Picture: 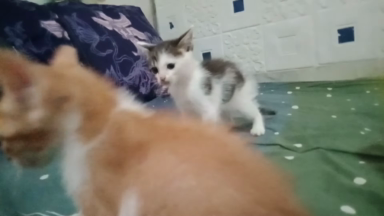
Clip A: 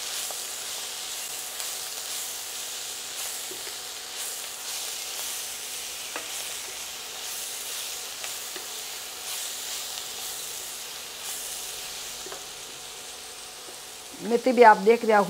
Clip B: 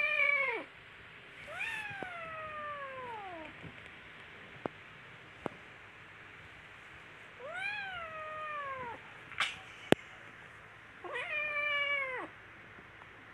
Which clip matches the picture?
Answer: B